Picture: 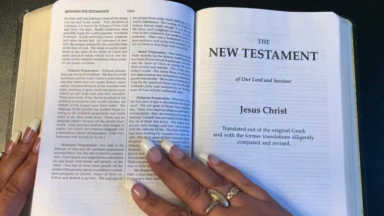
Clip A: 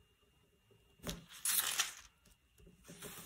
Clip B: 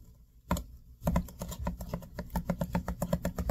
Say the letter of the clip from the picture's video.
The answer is A